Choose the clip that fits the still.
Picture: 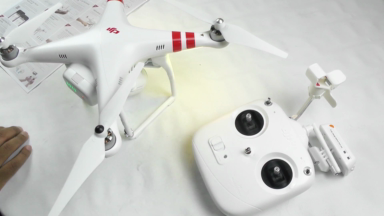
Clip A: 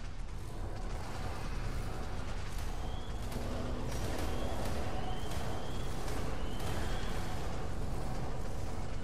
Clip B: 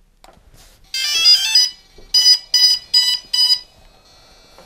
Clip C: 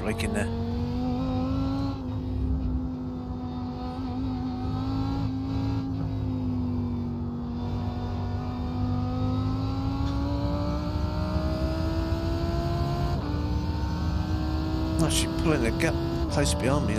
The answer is B